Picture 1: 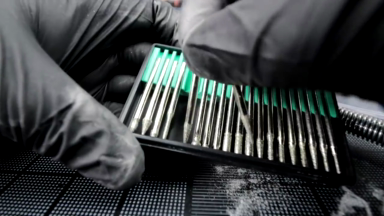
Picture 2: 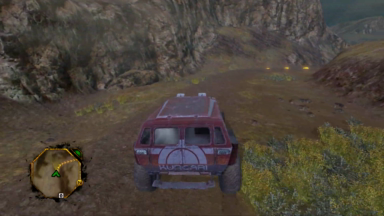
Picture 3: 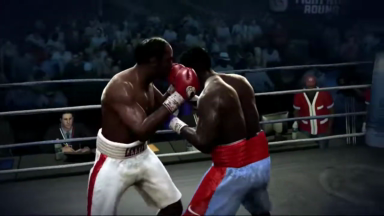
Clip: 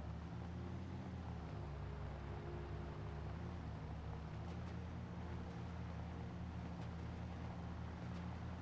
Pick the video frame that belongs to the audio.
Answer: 2